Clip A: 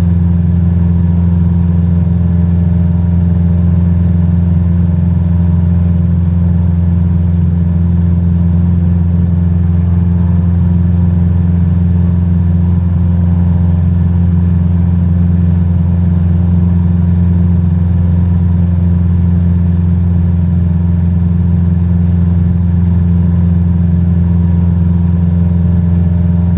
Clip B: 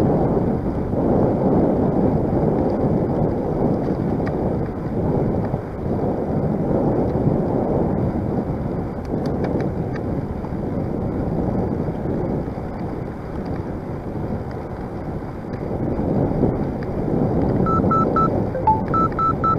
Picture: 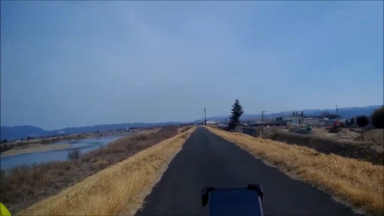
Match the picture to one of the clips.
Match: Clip B